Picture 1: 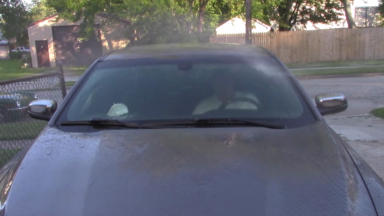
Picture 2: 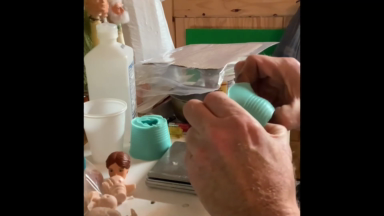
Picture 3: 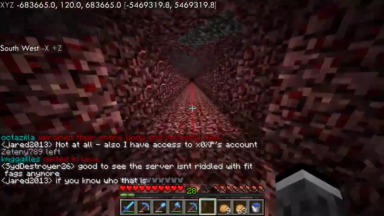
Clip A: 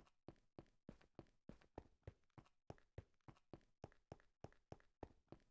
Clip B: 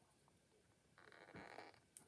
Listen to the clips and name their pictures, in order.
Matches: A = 3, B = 2